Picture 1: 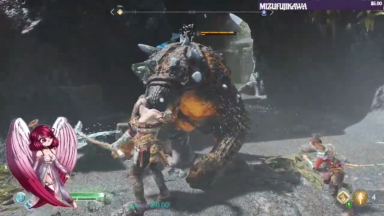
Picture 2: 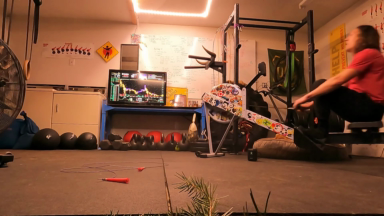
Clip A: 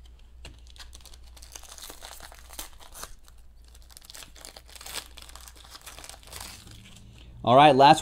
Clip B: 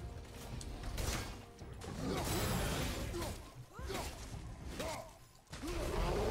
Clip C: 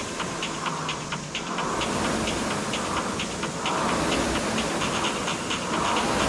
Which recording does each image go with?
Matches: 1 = B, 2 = C